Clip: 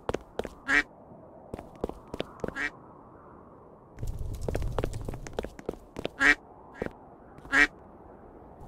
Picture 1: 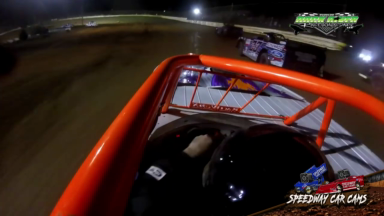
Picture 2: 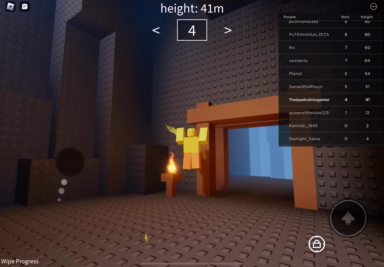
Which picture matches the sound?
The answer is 2